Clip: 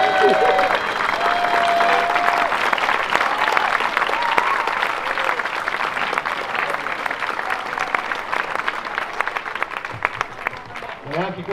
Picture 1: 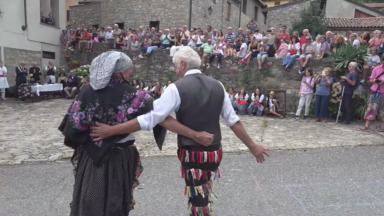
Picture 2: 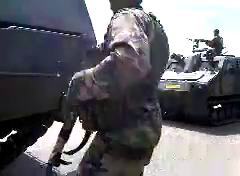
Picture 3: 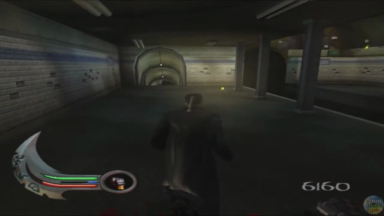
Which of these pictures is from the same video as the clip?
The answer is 1